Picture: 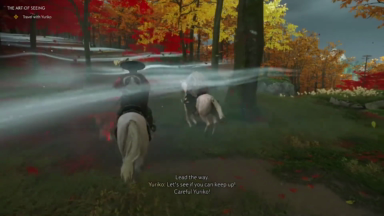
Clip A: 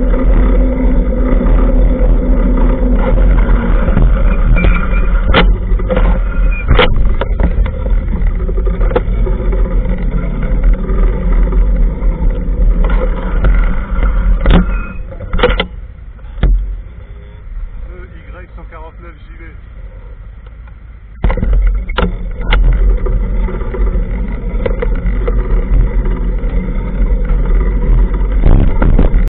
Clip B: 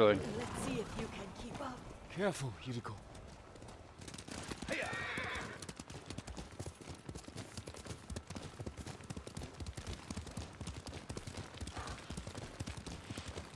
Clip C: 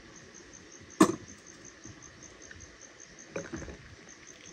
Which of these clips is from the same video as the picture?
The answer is B